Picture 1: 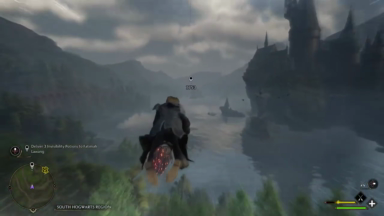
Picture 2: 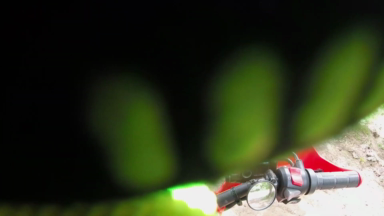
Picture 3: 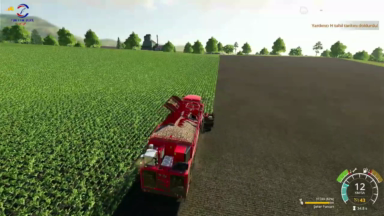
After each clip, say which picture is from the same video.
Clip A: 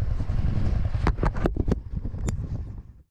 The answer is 2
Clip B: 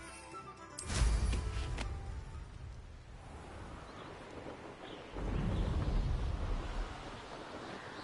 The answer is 1